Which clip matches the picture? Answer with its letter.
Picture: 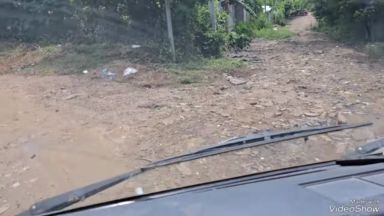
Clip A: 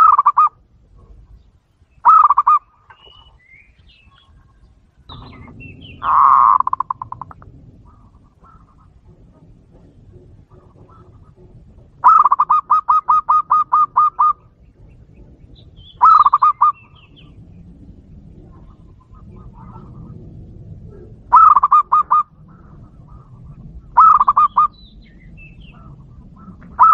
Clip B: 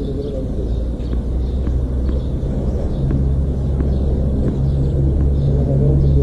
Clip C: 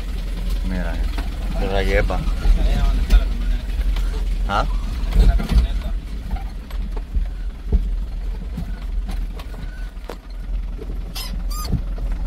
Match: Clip C